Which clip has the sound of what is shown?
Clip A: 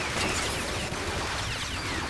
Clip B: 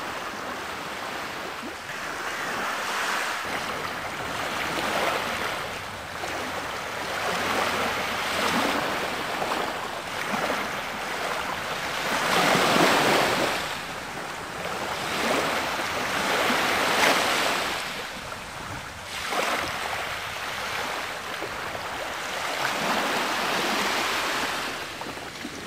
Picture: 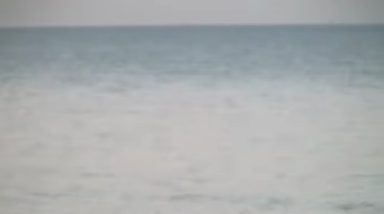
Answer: B